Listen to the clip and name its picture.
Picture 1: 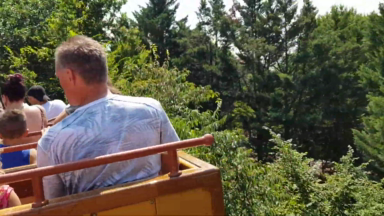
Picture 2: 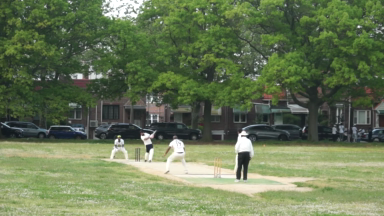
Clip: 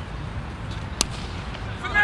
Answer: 2